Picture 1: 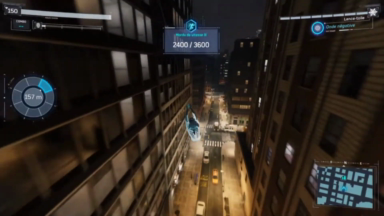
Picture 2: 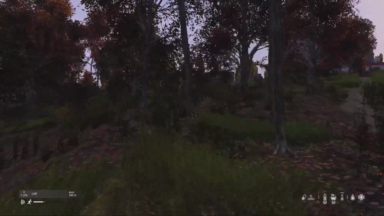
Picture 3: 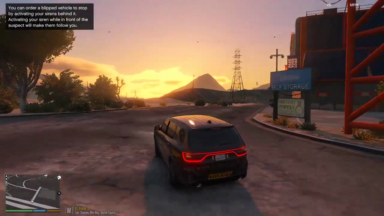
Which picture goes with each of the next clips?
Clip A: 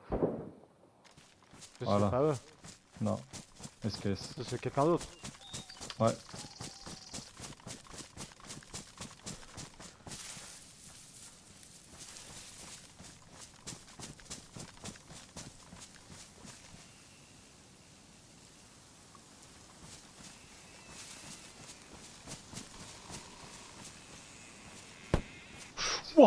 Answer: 2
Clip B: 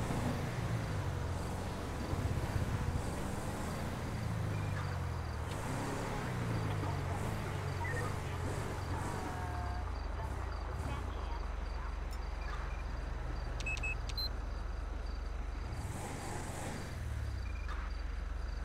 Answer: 3